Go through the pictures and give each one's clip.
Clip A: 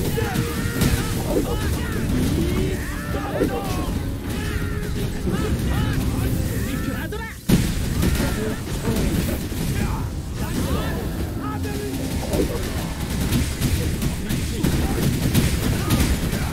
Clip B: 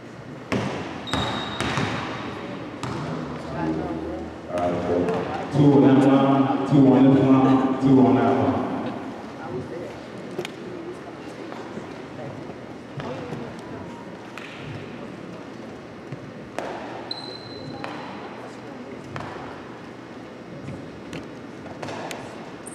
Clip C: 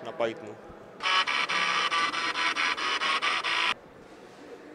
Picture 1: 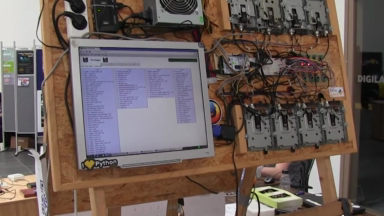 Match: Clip C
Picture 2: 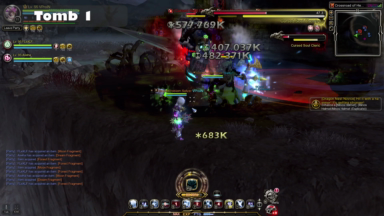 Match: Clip A